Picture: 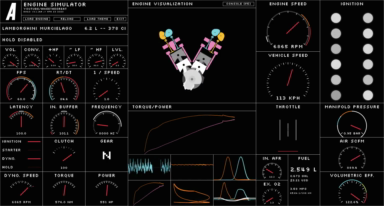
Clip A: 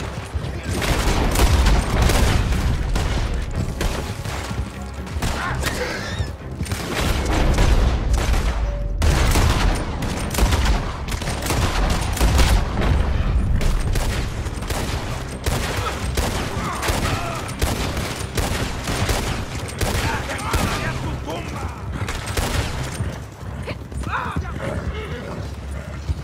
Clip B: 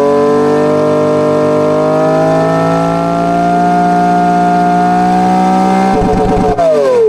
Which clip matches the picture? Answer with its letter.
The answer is B